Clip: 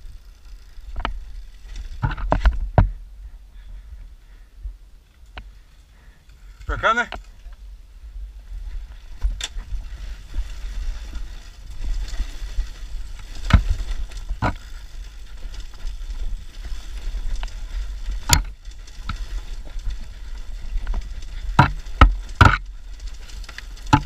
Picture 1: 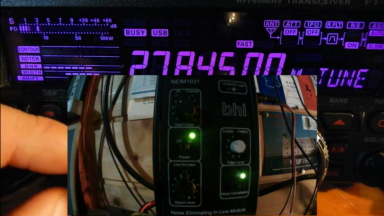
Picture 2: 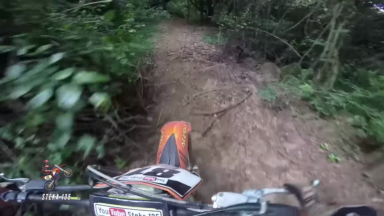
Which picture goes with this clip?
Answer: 2